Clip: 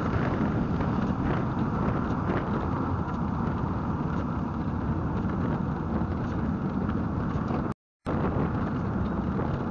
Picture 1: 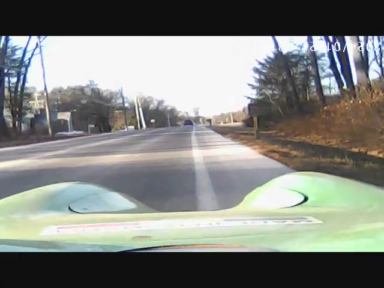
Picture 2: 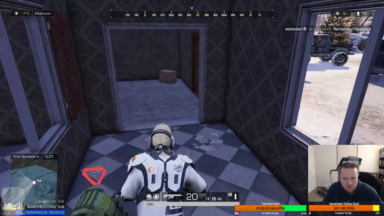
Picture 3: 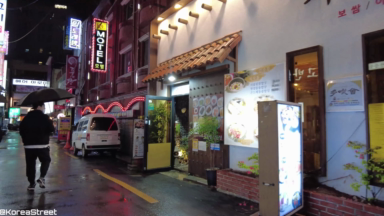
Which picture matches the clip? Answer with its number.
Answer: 1